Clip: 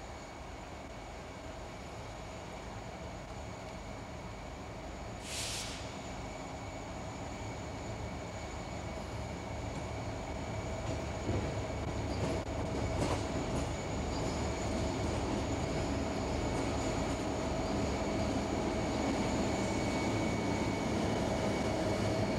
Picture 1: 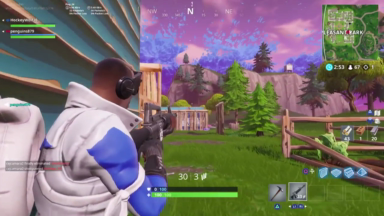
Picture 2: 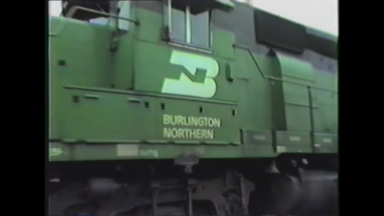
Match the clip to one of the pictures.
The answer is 2